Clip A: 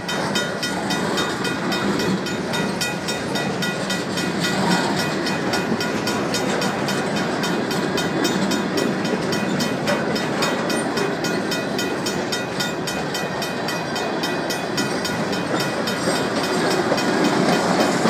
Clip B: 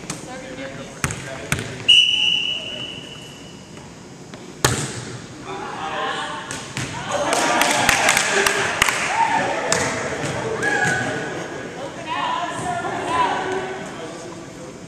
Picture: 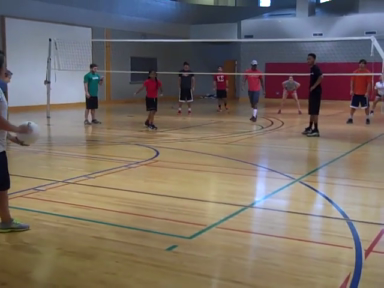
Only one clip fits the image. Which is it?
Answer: B